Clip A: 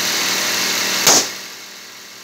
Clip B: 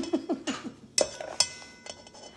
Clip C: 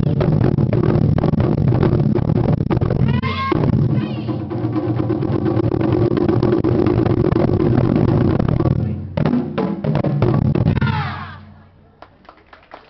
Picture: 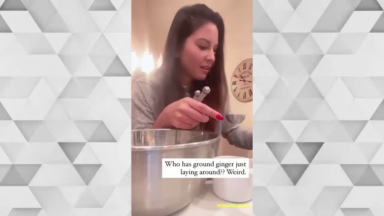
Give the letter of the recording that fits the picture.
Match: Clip B